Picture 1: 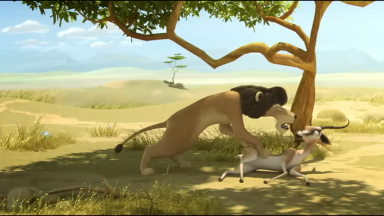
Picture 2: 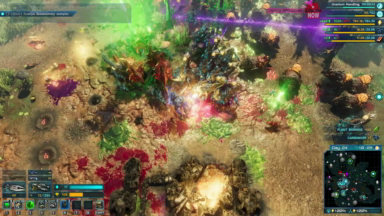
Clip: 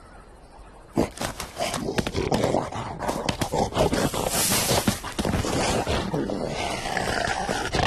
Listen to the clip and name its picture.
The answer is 1